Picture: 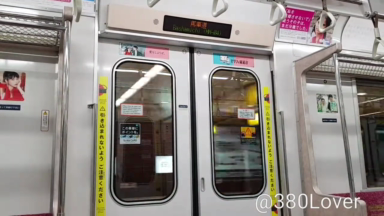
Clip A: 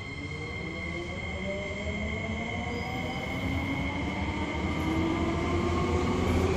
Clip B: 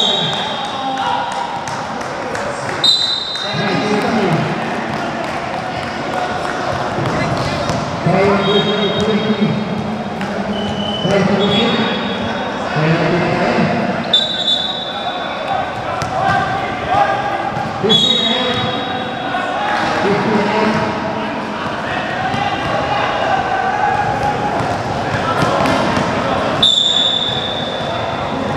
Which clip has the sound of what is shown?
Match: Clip A